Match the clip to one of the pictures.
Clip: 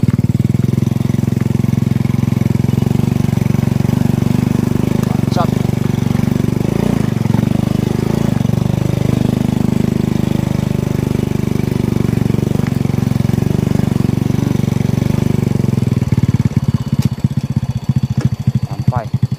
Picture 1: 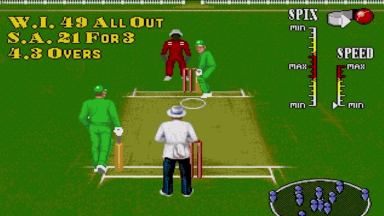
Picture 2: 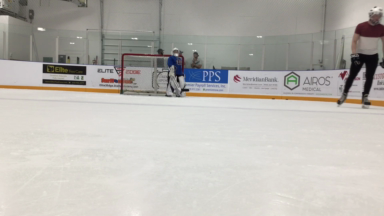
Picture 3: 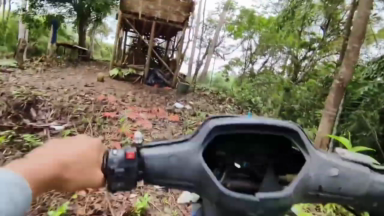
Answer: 3